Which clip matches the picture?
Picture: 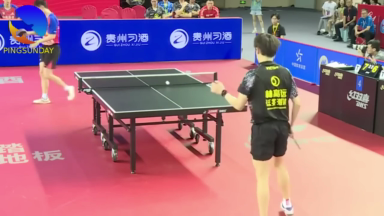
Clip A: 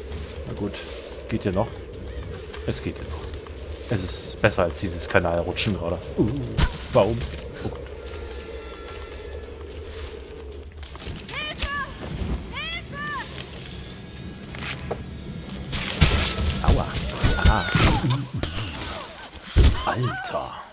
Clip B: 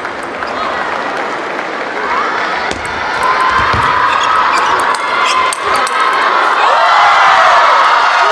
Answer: B